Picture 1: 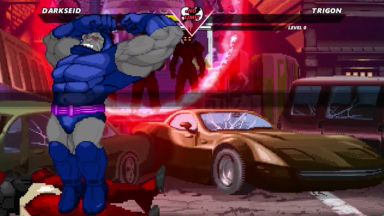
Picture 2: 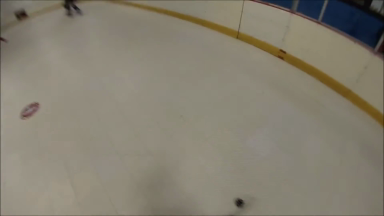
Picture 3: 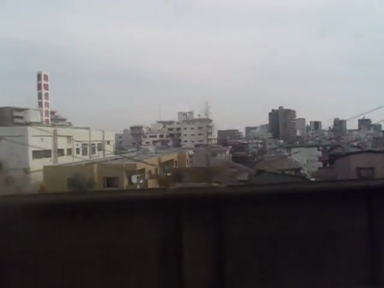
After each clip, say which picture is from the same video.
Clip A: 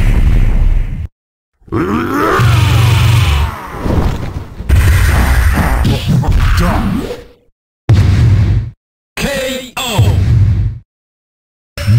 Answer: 1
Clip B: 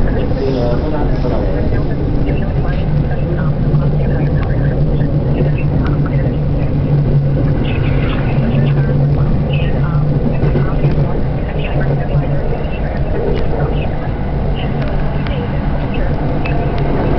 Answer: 3